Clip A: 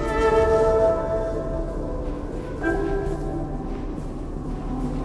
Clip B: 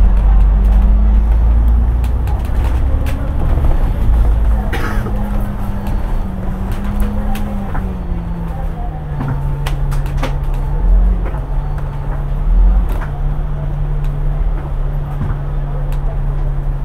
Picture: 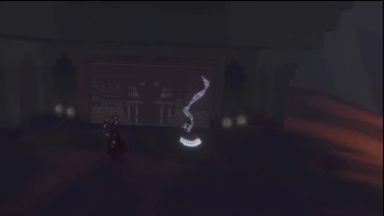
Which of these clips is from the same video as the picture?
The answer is A